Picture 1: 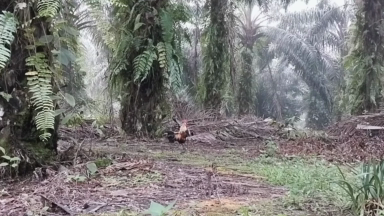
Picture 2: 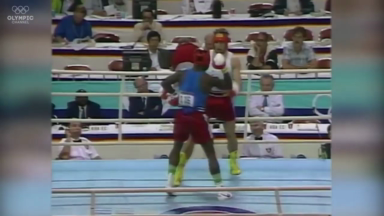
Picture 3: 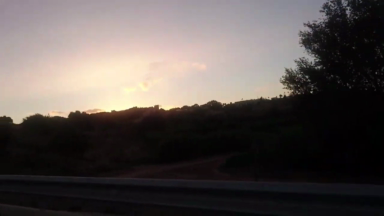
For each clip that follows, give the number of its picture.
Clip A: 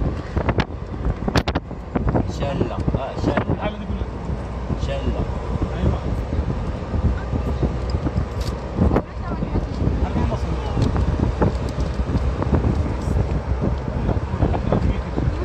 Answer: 3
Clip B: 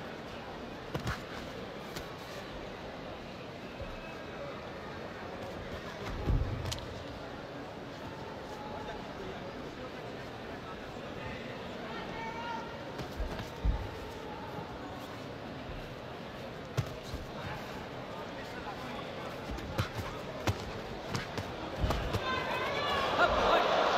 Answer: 2